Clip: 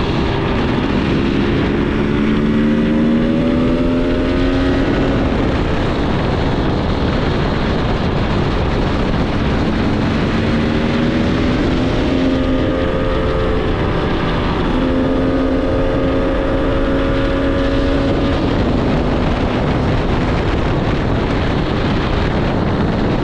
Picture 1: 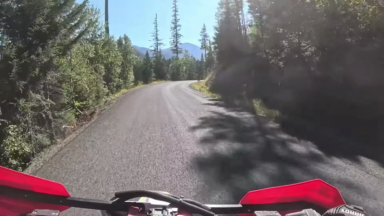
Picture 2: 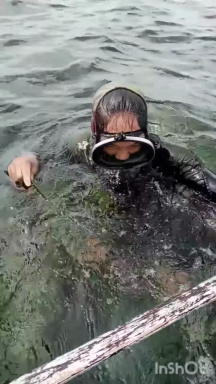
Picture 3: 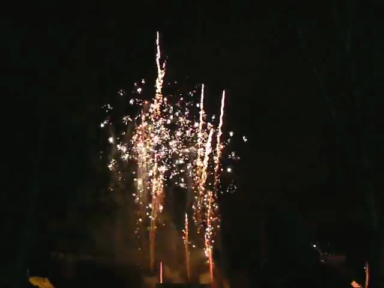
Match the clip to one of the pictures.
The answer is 1